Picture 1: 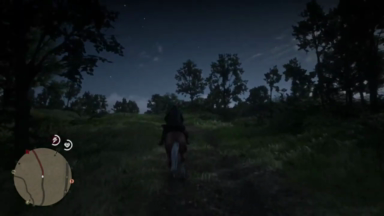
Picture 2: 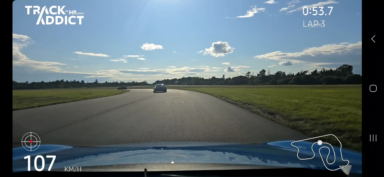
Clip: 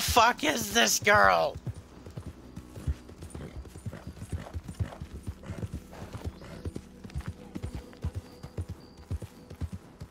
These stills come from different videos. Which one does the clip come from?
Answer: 1